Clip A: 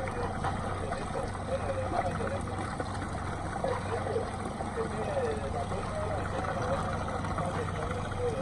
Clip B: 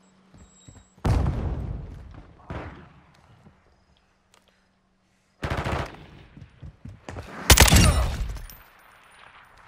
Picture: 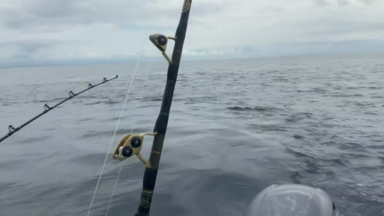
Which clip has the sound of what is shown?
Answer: A